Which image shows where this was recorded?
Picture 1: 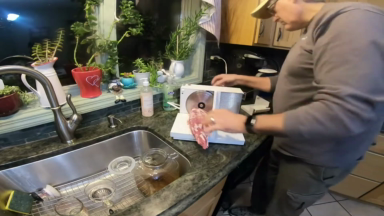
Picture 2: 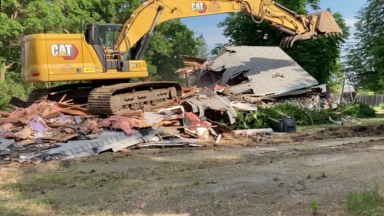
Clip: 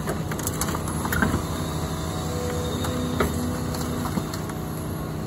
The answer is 2